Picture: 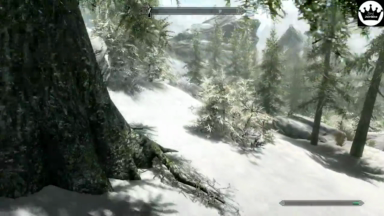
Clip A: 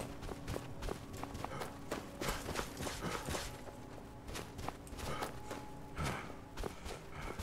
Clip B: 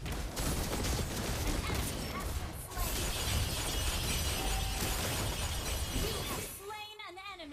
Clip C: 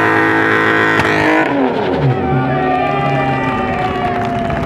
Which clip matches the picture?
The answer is A